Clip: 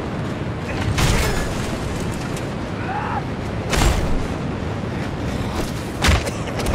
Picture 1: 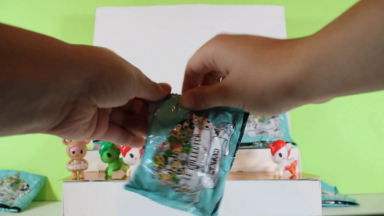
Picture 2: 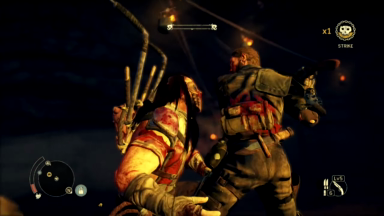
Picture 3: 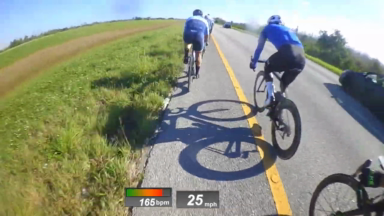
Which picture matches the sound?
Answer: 2